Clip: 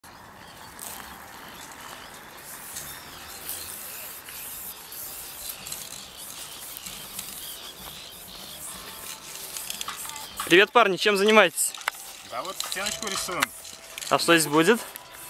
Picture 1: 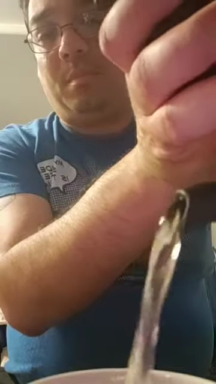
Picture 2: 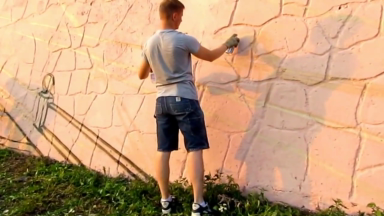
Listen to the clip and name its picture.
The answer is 2